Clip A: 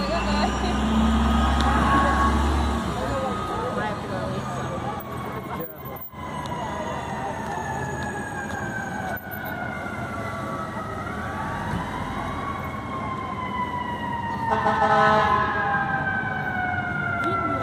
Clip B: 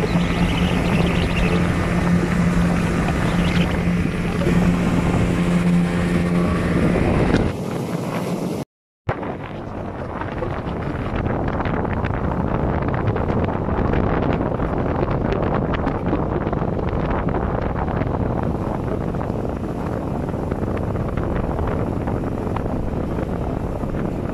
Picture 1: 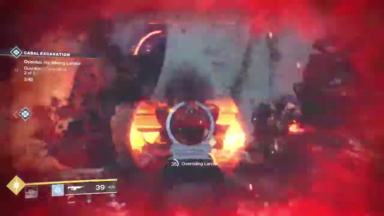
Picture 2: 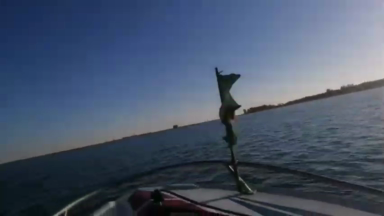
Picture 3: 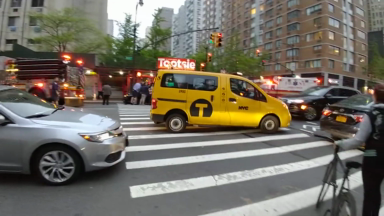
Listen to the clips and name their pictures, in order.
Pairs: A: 3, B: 2